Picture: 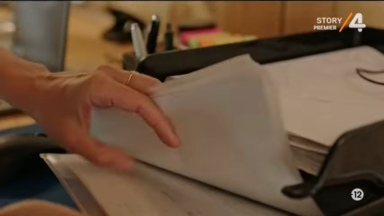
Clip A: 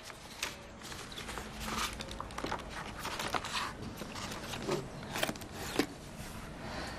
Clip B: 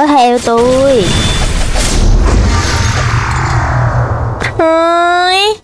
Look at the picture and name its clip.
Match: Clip A